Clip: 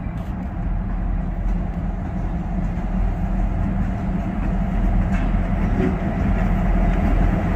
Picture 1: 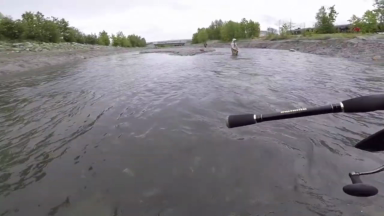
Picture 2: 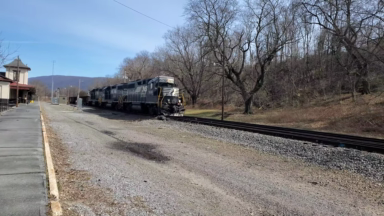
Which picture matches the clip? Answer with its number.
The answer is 2